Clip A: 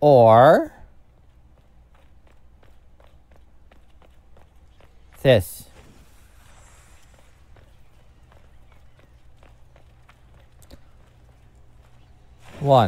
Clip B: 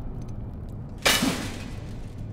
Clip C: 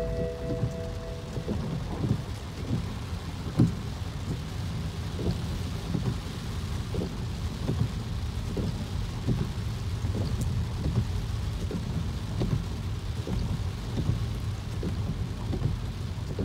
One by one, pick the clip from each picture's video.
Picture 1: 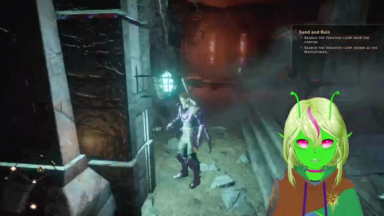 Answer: A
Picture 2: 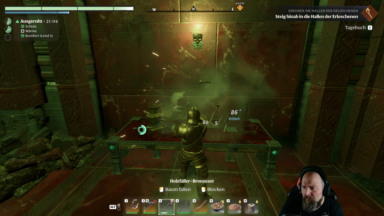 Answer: B